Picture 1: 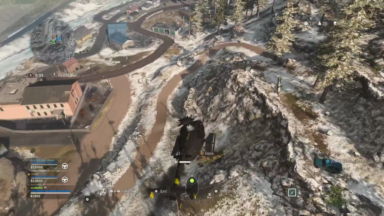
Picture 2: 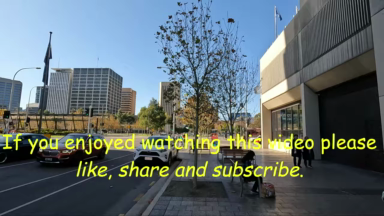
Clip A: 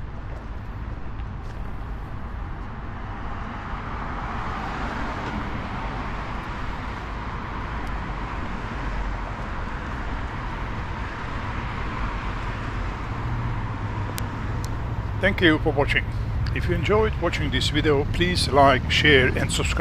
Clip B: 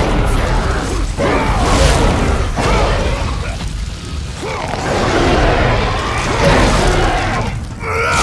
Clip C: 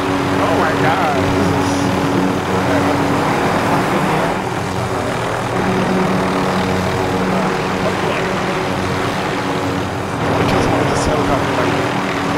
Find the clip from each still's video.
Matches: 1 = C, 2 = A